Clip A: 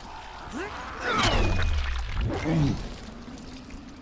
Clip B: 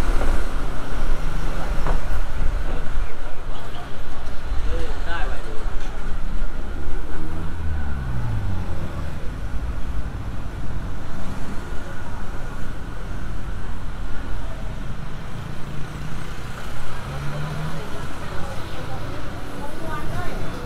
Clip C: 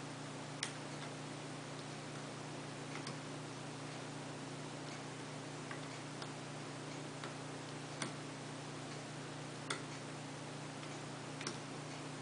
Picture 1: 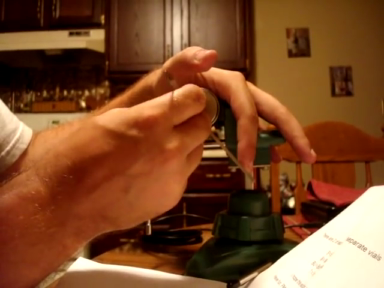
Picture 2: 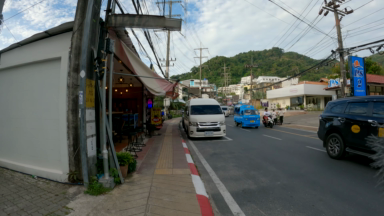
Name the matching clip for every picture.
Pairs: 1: C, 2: B